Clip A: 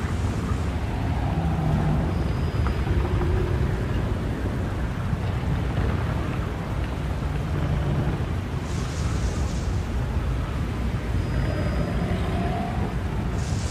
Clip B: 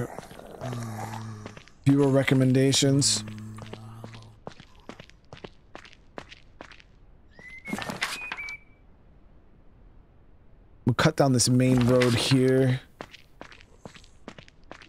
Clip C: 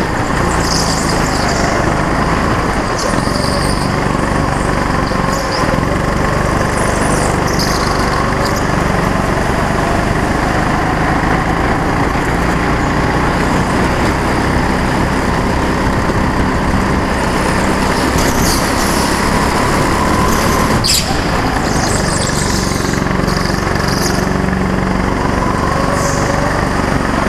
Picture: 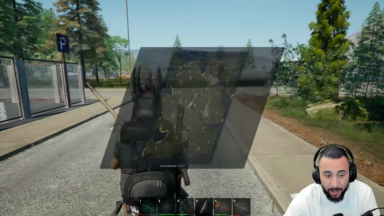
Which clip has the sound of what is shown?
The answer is B